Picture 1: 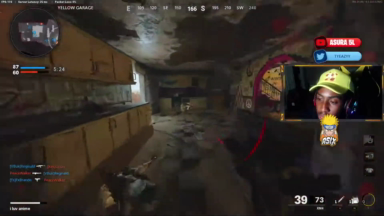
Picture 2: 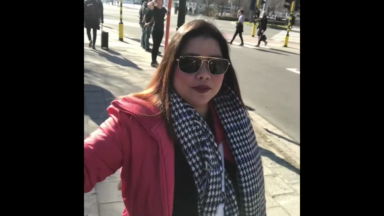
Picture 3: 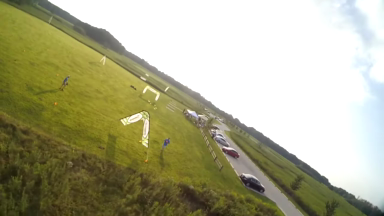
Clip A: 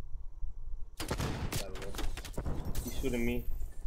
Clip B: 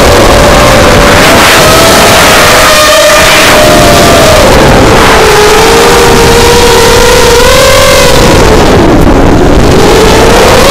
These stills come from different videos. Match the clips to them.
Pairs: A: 1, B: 3